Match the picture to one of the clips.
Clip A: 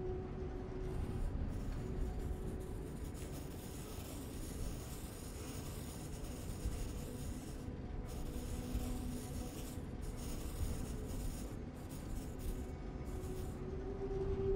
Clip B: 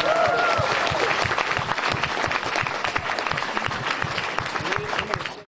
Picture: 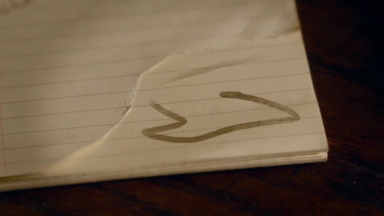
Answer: A